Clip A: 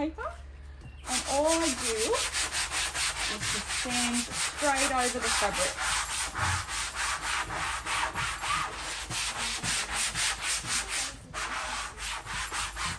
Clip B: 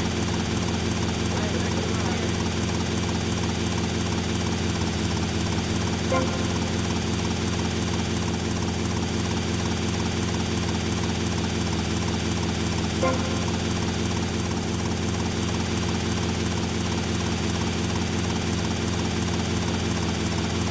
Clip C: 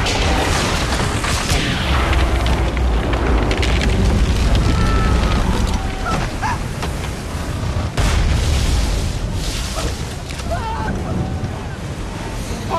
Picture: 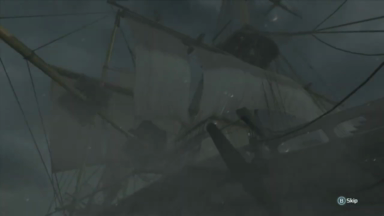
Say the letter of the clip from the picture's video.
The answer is C